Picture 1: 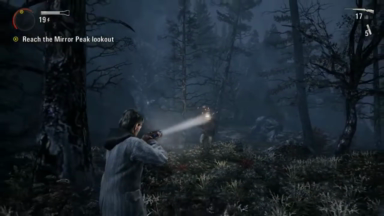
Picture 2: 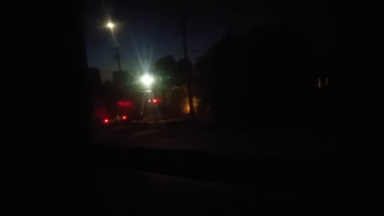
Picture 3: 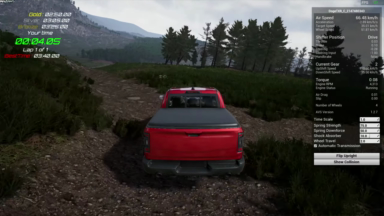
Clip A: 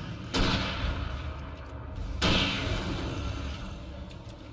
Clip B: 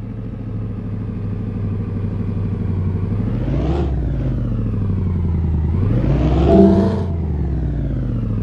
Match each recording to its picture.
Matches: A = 1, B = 3